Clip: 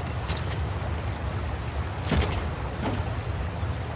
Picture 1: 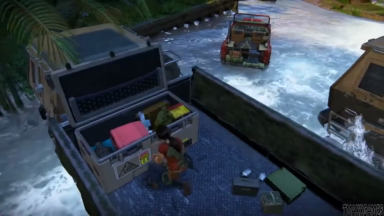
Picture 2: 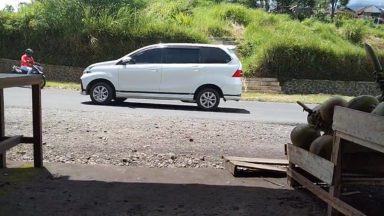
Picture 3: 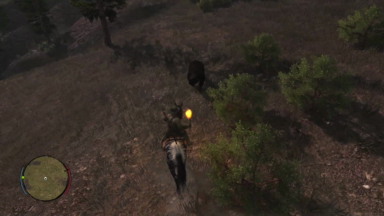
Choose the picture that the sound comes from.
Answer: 1